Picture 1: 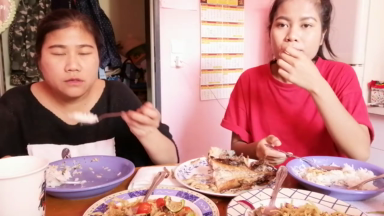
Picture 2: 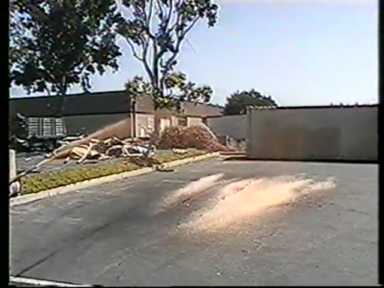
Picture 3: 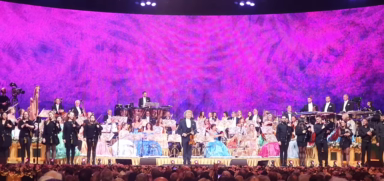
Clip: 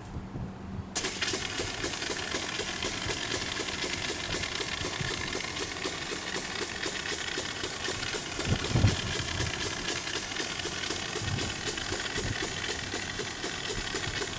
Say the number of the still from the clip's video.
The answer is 2